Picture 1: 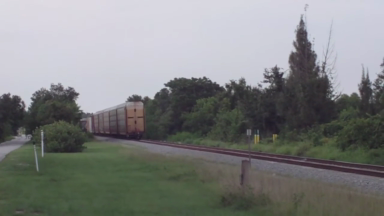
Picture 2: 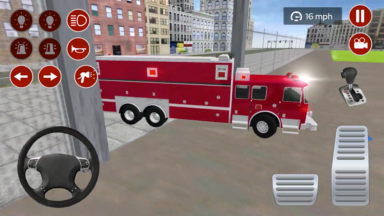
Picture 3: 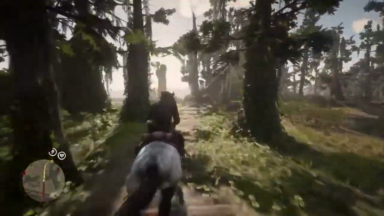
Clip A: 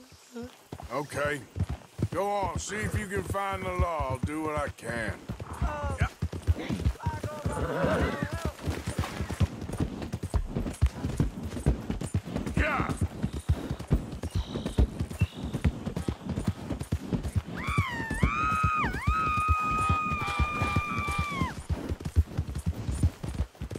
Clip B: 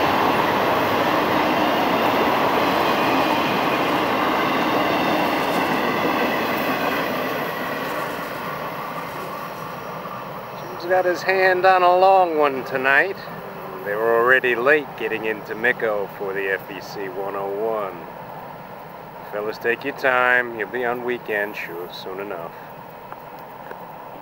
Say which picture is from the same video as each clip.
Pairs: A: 3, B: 1